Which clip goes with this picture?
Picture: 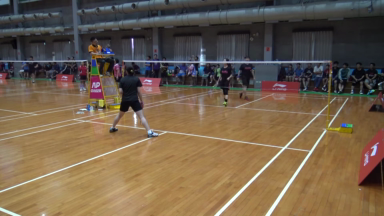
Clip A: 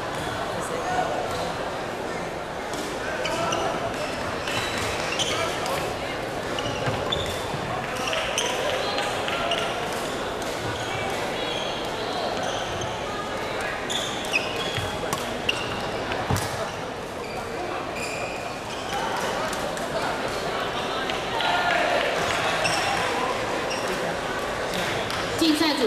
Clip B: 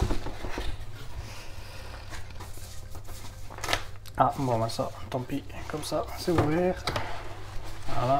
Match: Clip A